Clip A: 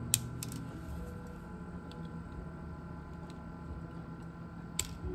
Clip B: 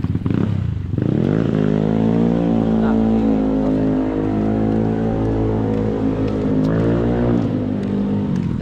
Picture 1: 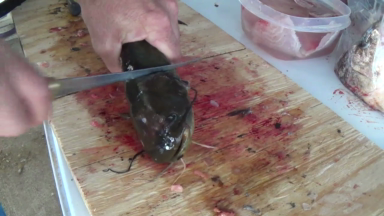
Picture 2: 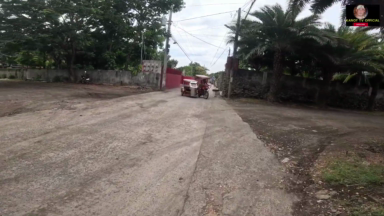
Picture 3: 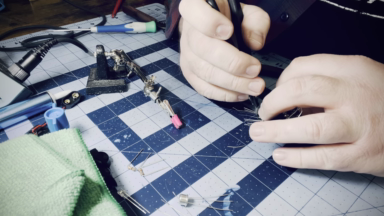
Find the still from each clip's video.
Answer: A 3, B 2